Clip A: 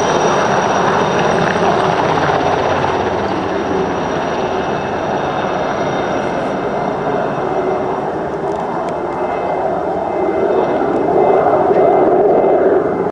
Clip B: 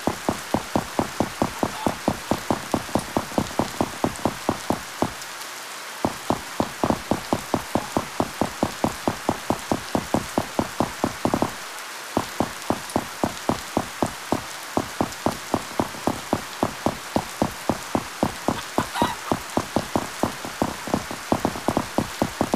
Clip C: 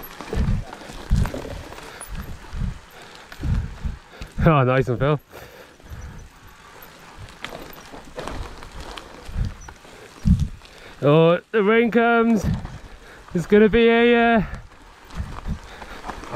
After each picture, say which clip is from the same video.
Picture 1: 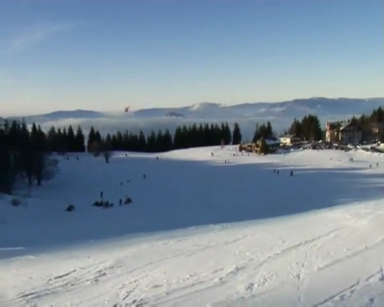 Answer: A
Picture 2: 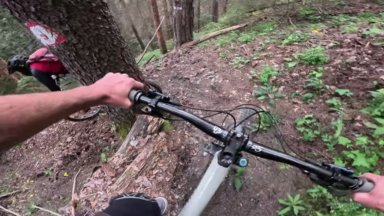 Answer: C